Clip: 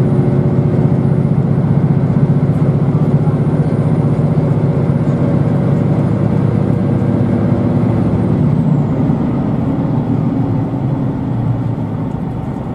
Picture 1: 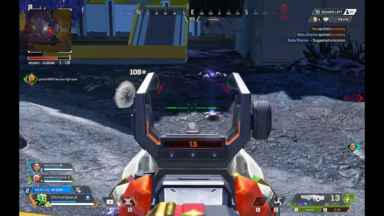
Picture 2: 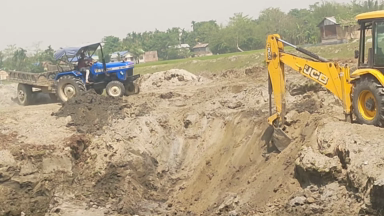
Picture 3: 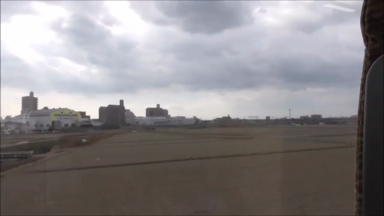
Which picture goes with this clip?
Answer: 3